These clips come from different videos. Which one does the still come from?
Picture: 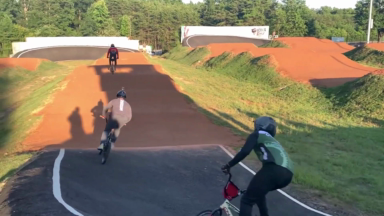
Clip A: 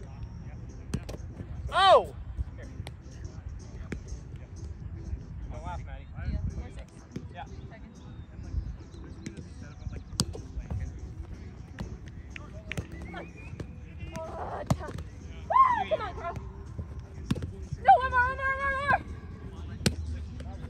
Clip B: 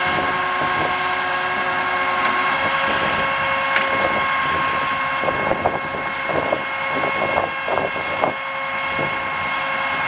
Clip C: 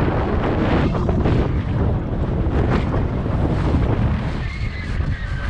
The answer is C